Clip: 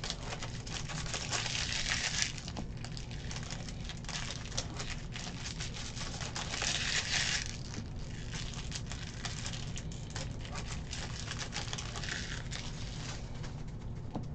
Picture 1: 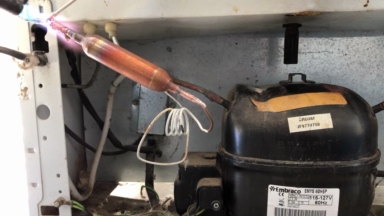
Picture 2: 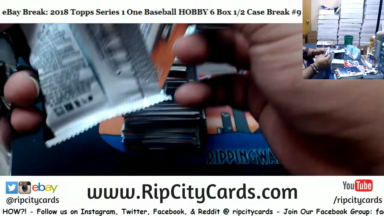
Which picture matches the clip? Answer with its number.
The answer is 2